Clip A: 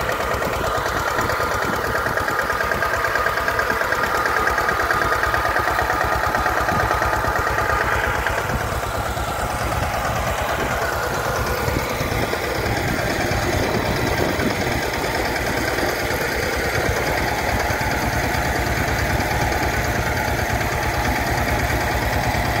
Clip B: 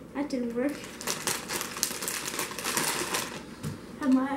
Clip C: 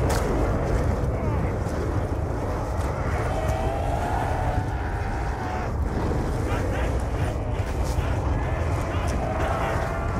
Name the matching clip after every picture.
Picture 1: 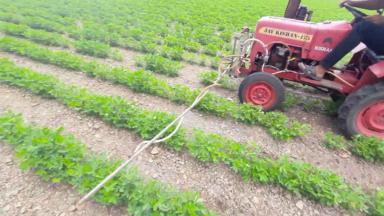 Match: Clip A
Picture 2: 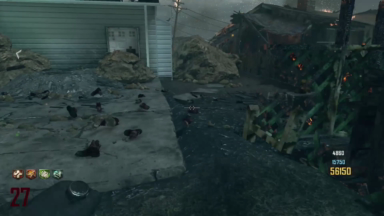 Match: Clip C